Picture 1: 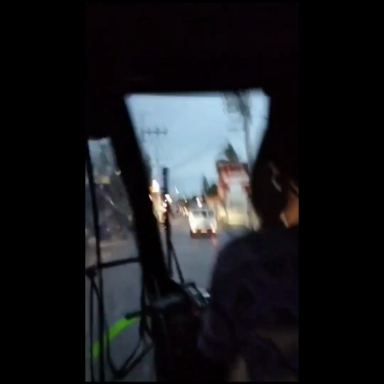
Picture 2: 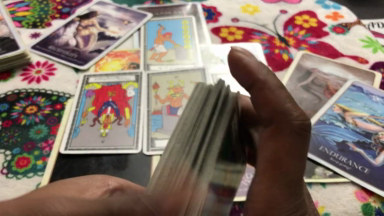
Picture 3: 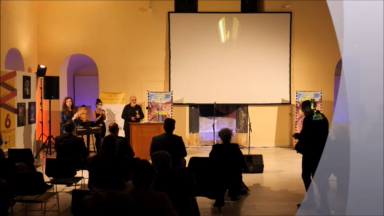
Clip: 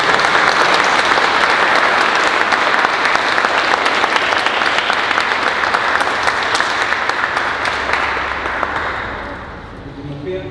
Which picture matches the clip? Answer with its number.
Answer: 3